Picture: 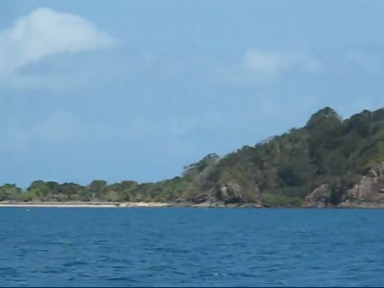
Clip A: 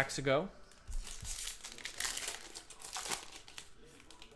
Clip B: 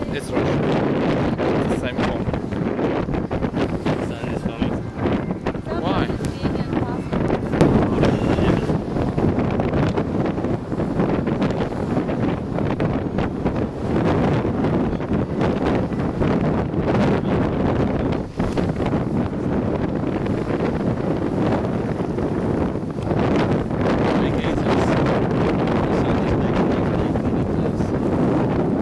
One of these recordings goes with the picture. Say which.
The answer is B